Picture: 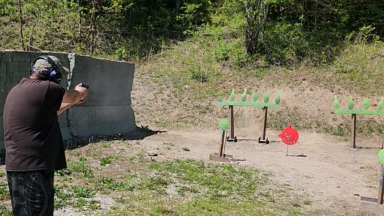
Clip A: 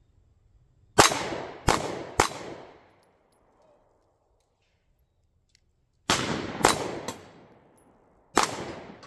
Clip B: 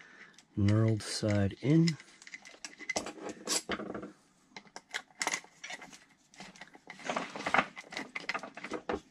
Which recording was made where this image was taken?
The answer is A